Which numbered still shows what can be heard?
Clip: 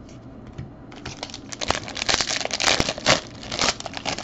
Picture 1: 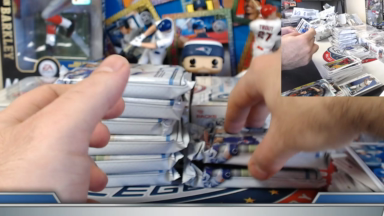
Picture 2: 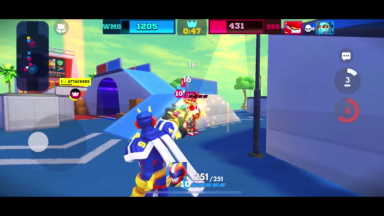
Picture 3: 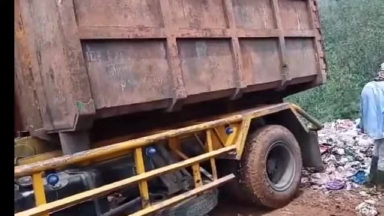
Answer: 1